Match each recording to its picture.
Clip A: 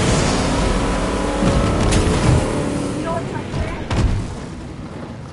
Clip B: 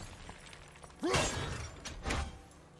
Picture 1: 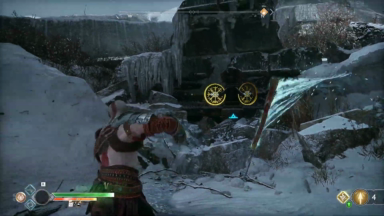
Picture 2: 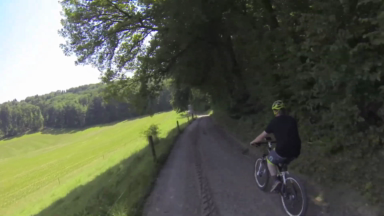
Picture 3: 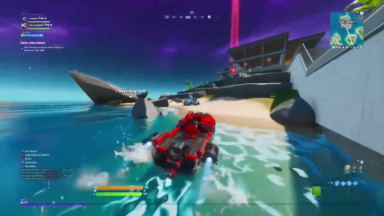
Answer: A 3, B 1